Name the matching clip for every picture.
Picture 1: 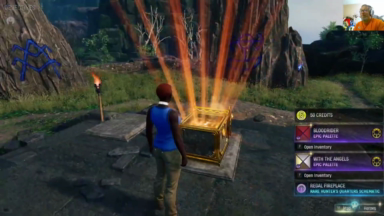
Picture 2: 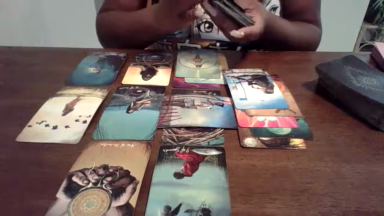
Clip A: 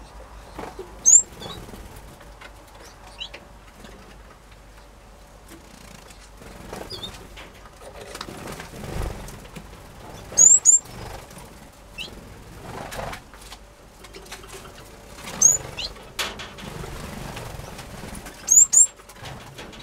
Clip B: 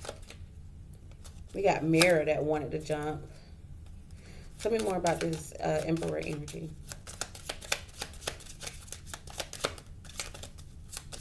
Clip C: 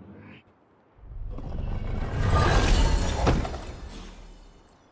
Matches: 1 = C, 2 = B